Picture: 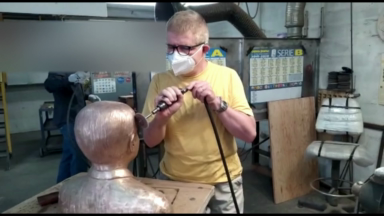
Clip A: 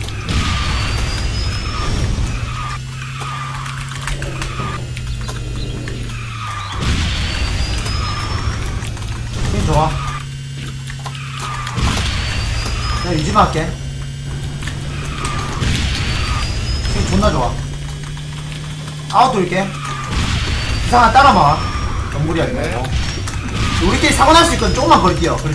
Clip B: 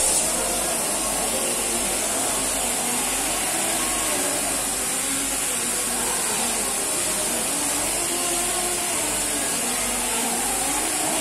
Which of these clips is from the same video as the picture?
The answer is B